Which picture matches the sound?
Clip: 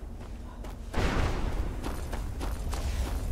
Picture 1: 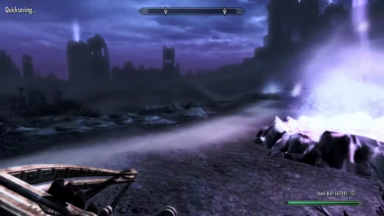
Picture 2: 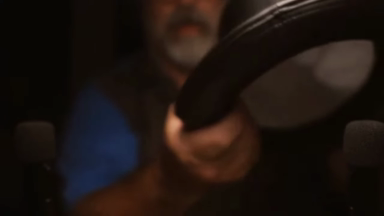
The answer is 1